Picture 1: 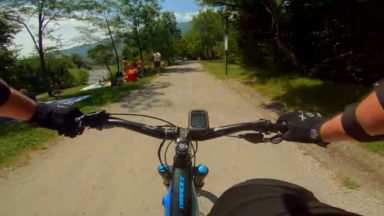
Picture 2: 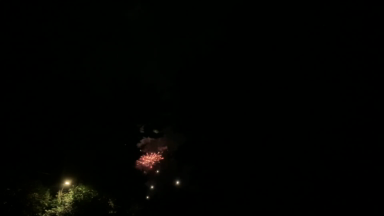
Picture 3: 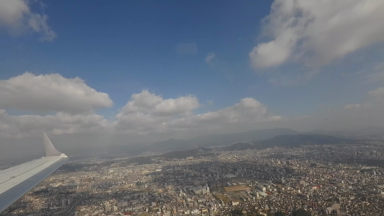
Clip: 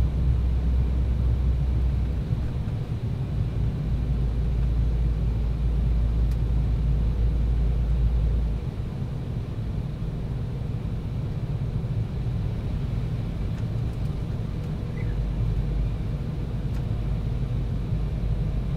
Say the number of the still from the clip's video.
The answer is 3